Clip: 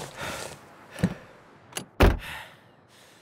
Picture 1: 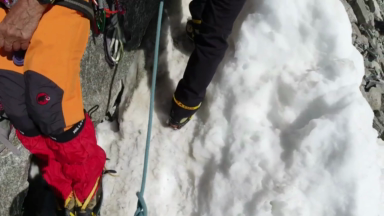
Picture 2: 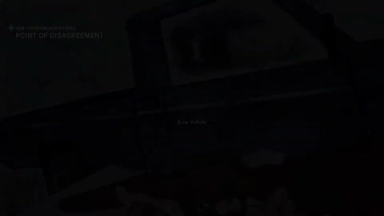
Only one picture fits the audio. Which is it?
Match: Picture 2